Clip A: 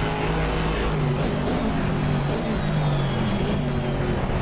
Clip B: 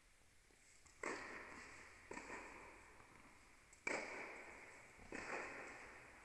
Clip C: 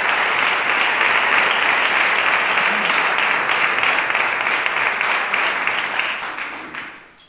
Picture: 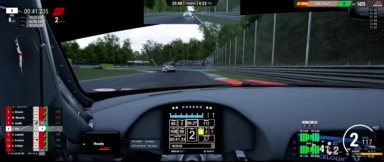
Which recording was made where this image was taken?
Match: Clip A